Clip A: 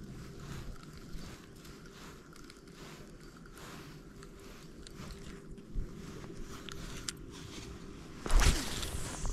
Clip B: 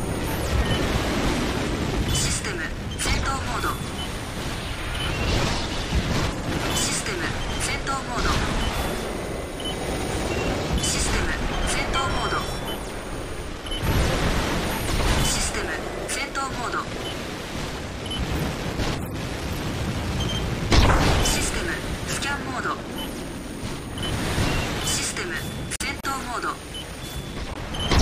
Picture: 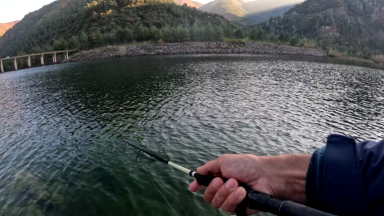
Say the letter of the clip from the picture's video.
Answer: A